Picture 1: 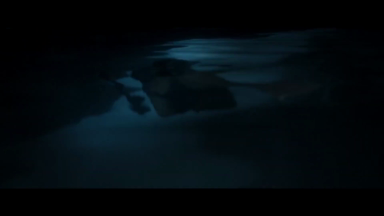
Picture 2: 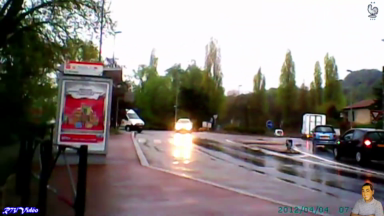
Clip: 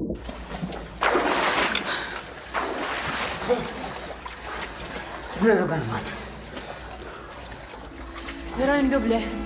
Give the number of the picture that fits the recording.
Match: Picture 1